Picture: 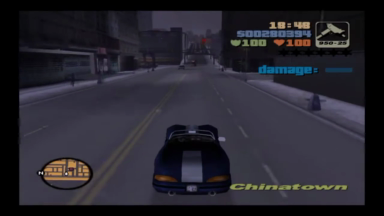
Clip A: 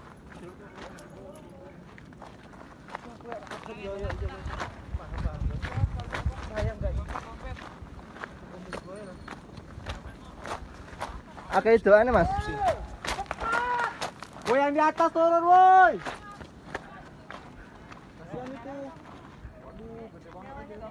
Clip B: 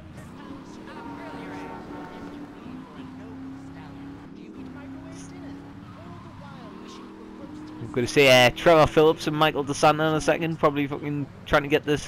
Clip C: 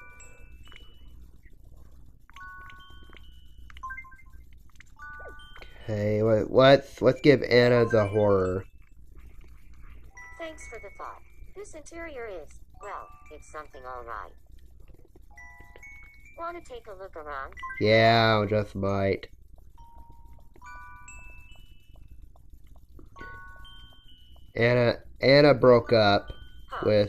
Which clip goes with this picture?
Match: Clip B